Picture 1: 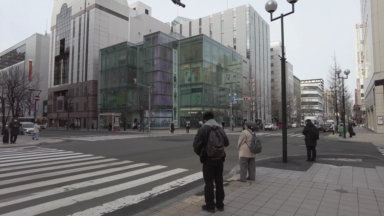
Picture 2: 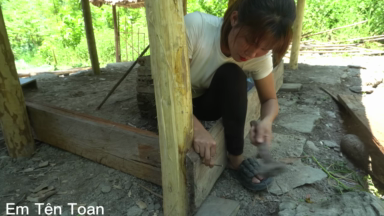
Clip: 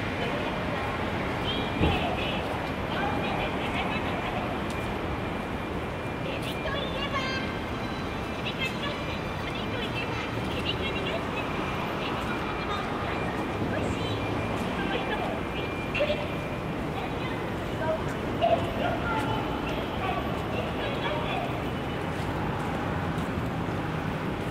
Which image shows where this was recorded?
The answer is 1